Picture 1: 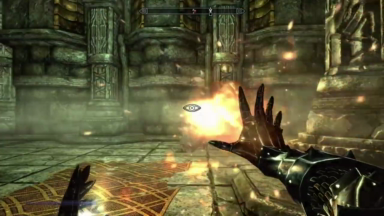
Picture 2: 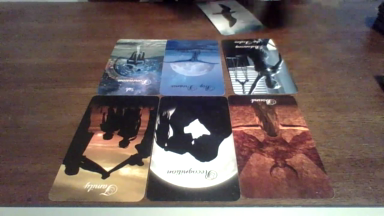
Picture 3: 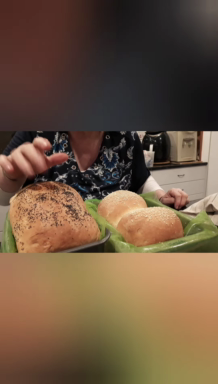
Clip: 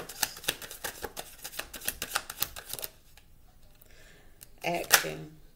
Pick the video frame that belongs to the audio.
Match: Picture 2